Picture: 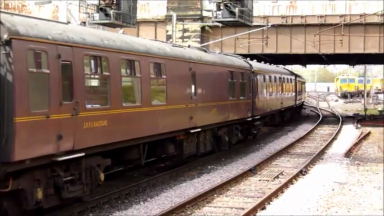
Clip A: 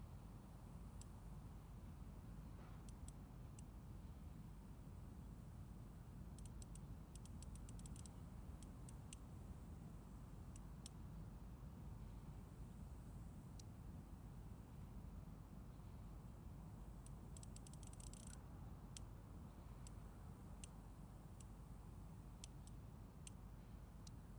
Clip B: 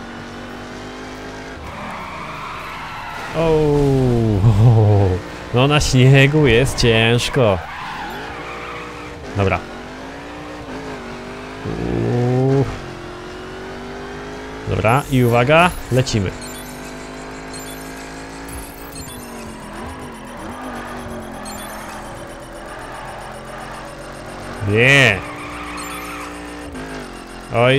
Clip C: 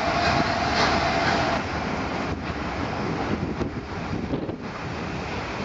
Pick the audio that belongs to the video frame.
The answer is C